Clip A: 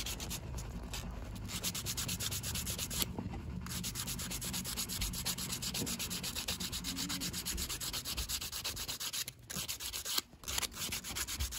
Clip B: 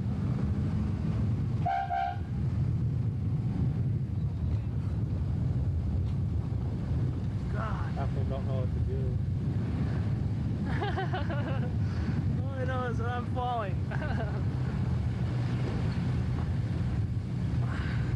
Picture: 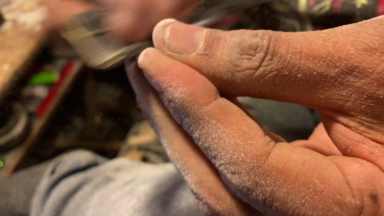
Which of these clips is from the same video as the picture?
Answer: A